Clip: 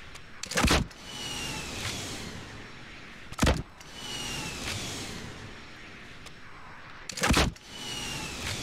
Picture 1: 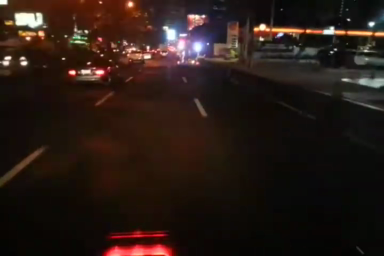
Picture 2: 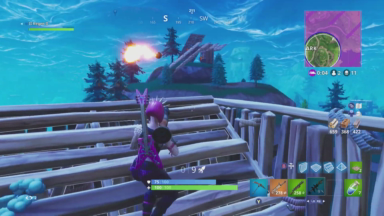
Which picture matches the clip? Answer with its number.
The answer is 2